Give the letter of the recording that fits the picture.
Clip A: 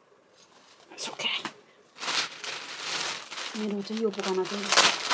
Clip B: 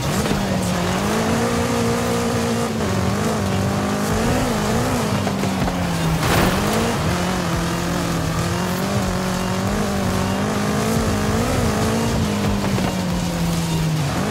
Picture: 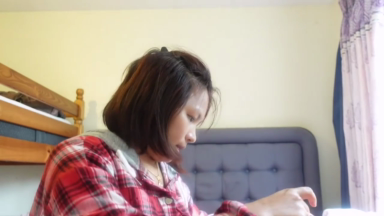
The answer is A